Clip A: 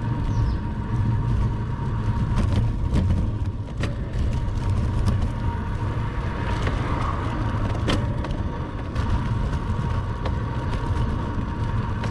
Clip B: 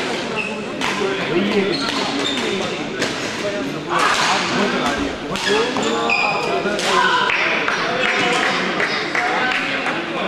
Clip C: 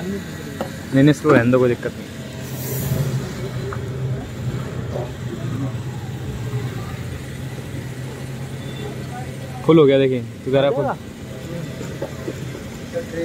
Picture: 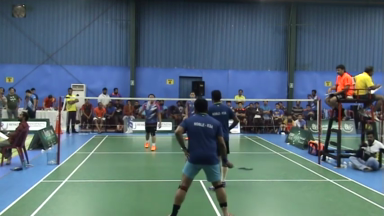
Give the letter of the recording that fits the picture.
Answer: B